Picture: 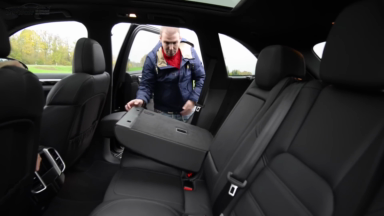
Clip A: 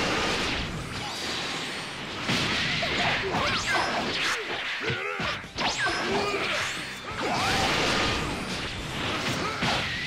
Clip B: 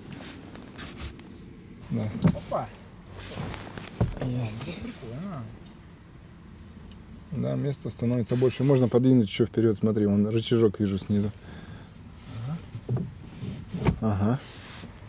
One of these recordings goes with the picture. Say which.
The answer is B